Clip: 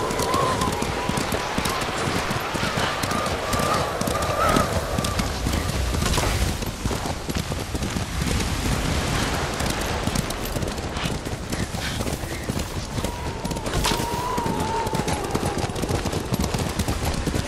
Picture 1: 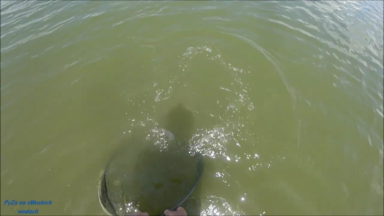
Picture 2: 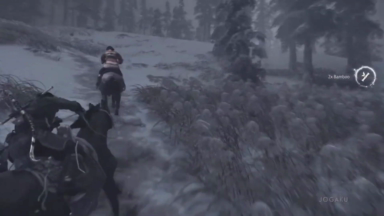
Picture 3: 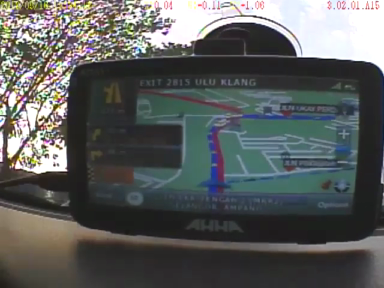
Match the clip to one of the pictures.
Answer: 2